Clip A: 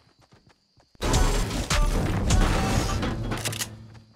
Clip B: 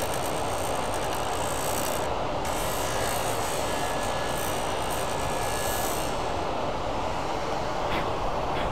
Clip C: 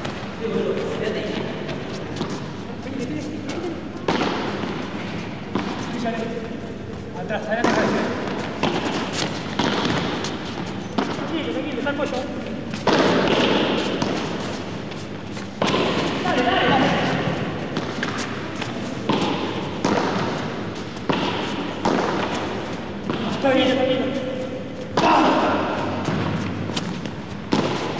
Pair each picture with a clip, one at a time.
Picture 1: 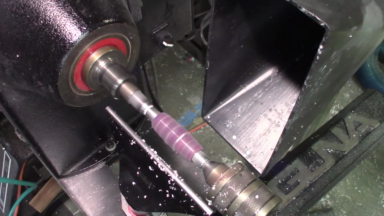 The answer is B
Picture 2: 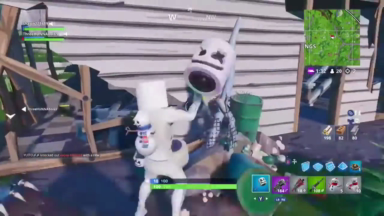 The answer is A